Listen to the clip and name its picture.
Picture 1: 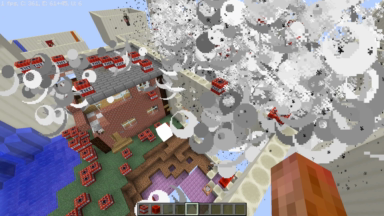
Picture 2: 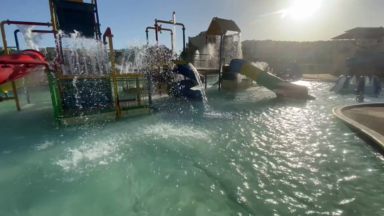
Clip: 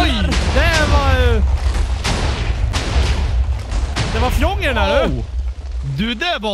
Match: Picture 1